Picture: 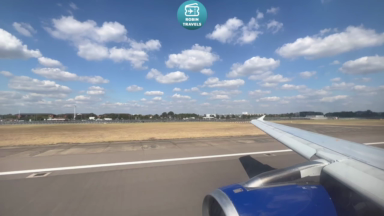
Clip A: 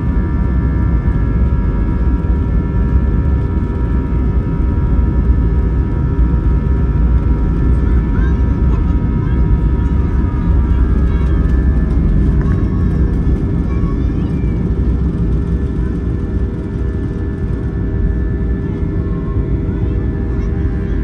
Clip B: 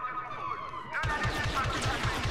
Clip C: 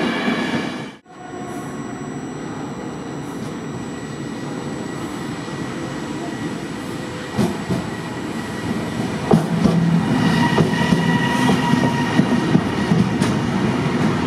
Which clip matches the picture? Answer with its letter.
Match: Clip A